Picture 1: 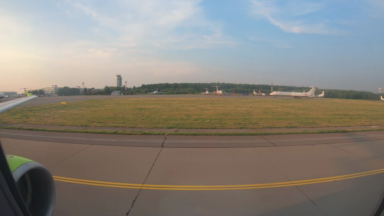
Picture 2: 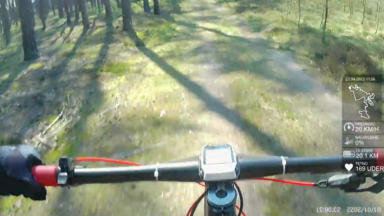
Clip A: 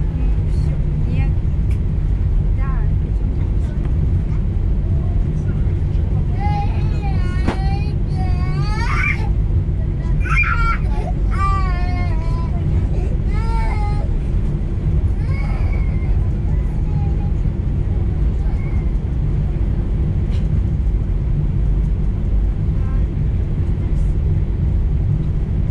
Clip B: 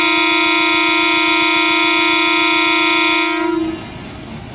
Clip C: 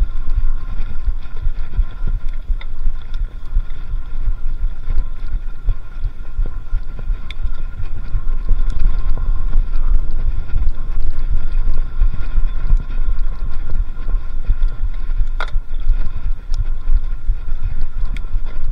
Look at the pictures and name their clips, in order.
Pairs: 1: A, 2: C